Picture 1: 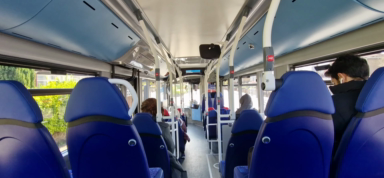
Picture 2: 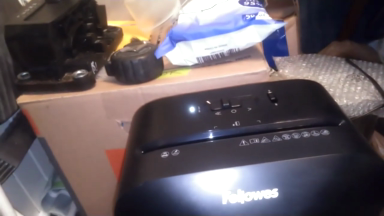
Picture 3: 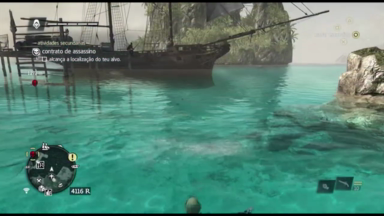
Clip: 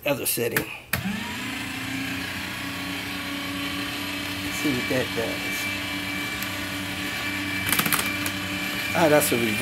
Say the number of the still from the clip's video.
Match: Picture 2